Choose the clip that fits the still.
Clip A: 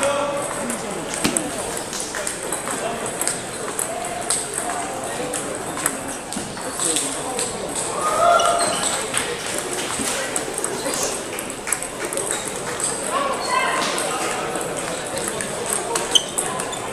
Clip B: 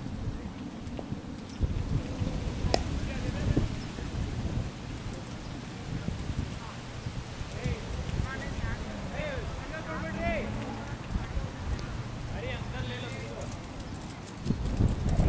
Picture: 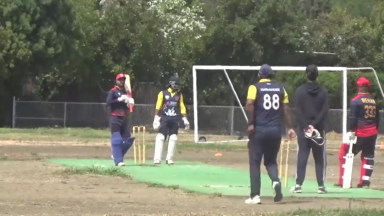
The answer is B